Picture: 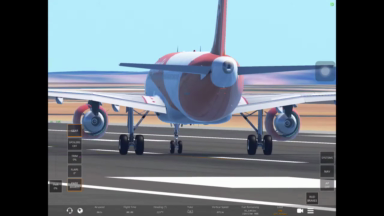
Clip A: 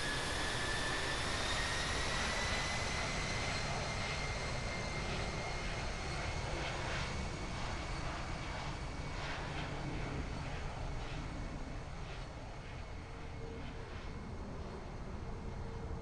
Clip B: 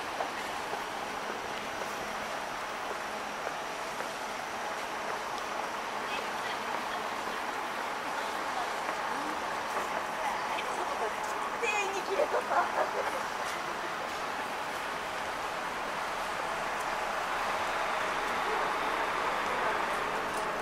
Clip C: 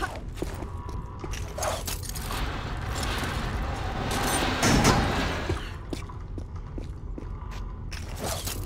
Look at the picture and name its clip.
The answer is A